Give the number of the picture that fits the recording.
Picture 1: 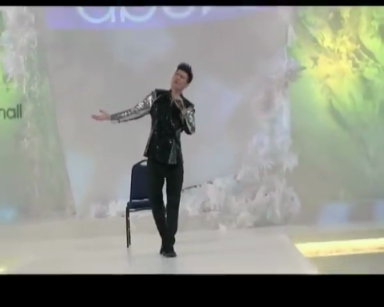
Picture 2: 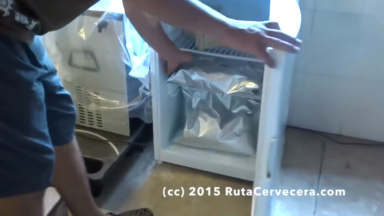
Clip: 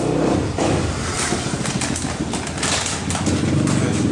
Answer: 2